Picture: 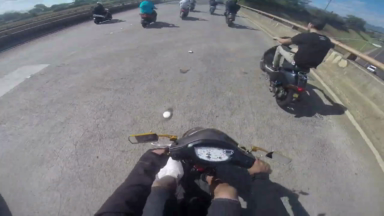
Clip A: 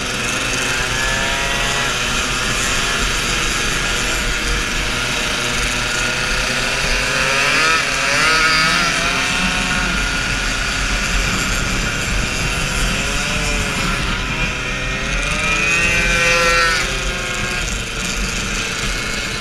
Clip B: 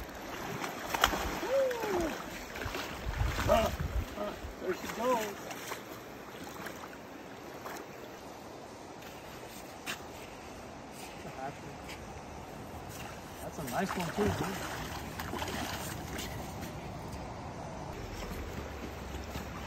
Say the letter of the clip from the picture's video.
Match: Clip A